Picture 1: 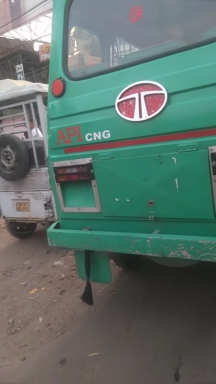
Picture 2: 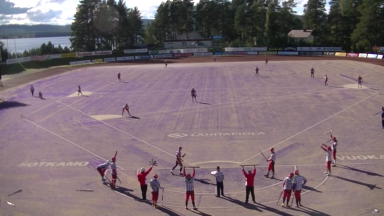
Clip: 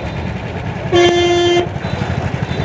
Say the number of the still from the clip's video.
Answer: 1